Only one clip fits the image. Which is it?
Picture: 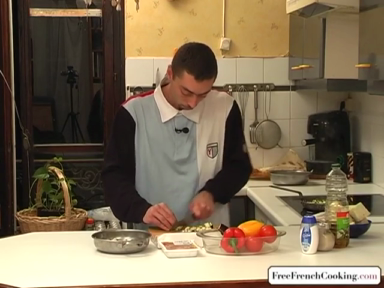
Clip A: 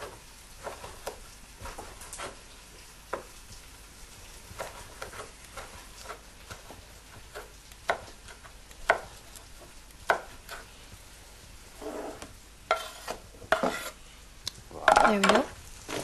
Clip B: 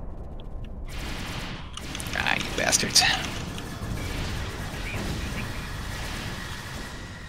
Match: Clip A